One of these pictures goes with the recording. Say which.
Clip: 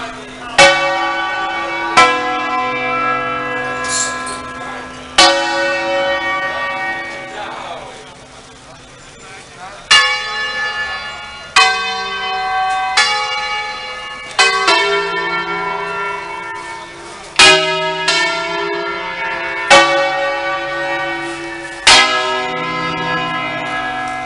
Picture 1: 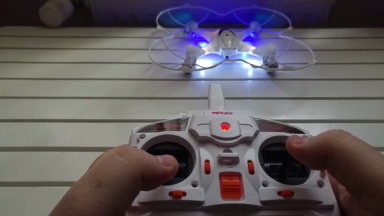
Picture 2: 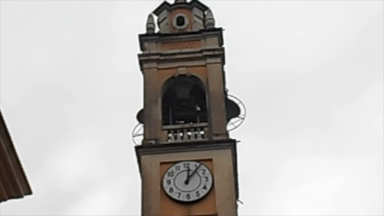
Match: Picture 2